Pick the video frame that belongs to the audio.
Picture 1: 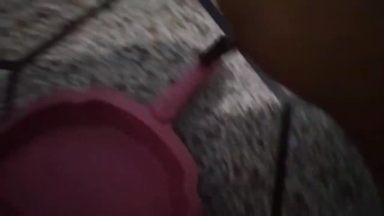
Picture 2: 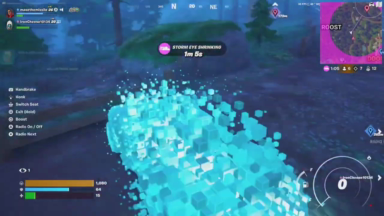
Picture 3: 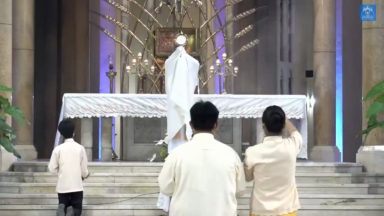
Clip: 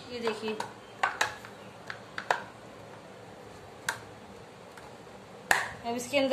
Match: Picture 1